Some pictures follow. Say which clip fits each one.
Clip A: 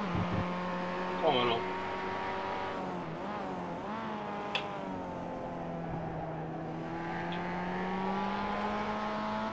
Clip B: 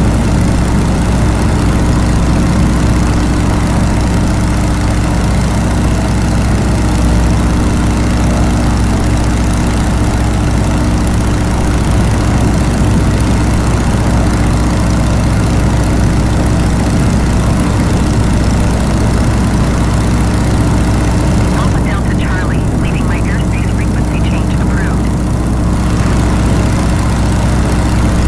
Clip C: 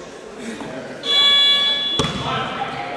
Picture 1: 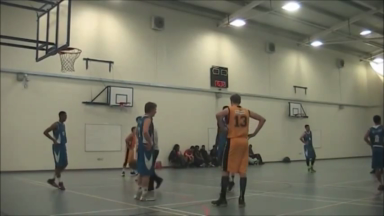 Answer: C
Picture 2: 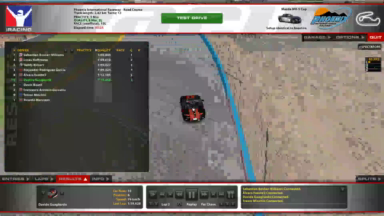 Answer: A